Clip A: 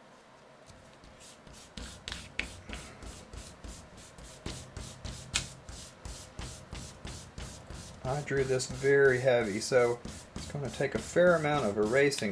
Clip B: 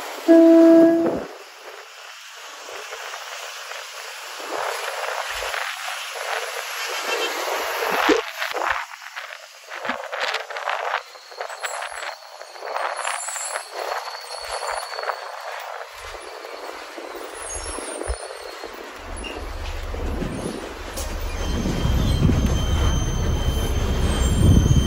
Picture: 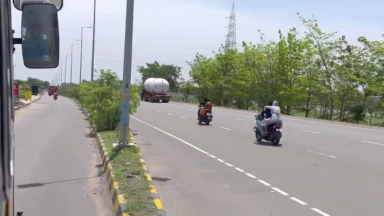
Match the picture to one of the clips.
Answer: B